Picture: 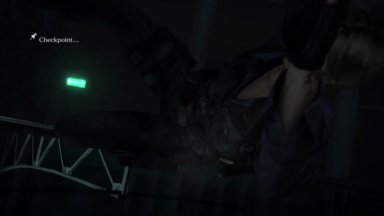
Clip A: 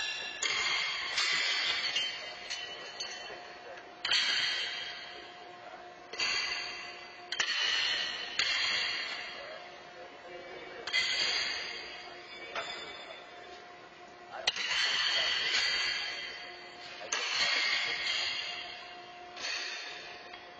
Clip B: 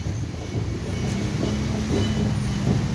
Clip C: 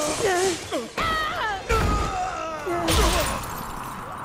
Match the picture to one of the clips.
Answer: C